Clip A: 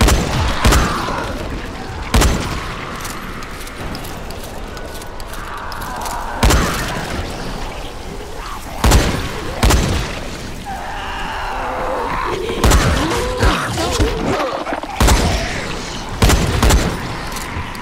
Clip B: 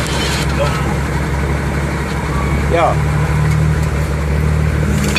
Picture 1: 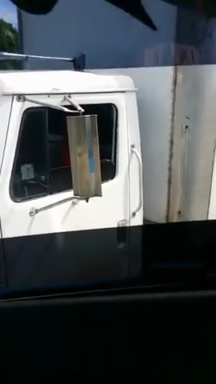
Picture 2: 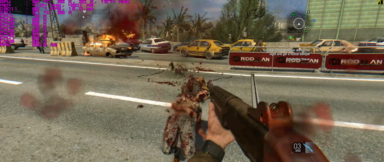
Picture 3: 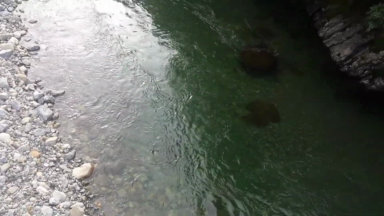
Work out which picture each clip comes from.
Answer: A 2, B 1